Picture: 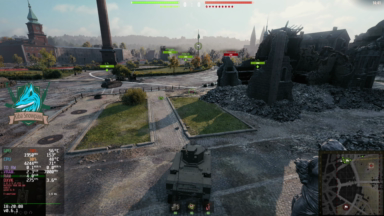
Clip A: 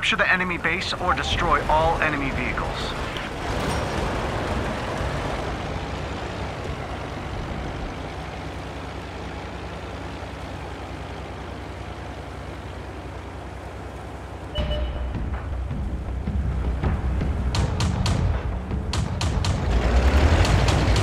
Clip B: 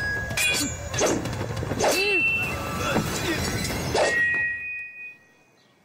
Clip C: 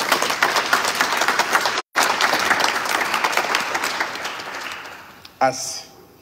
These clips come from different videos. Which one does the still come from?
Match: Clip A